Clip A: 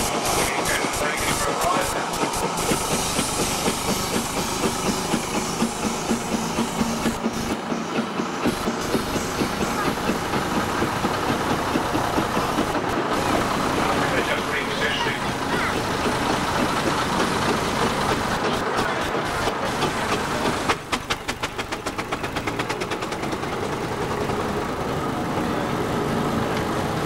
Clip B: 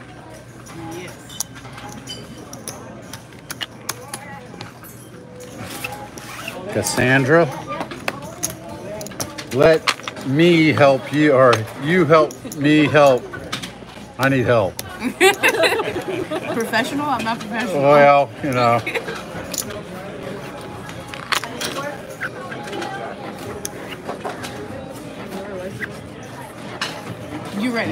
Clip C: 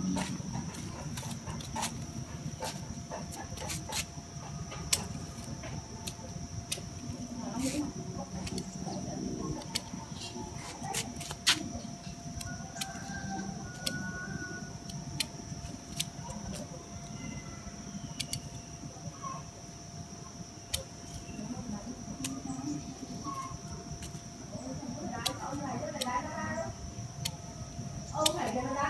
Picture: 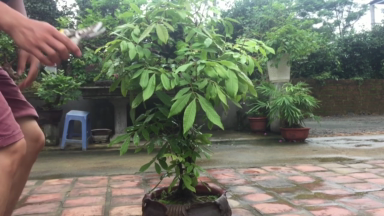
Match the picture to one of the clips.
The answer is C